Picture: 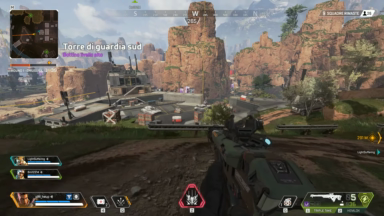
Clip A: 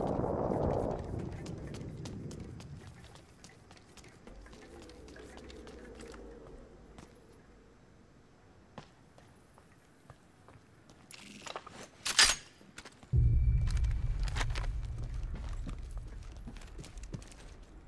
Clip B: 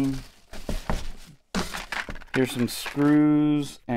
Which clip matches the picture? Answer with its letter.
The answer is A